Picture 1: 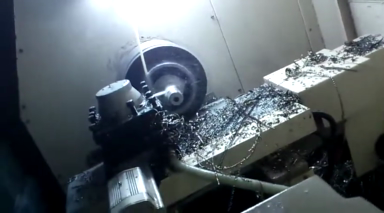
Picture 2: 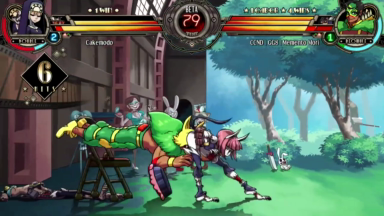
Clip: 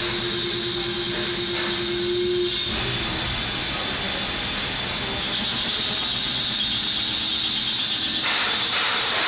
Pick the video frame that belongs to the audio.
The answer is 1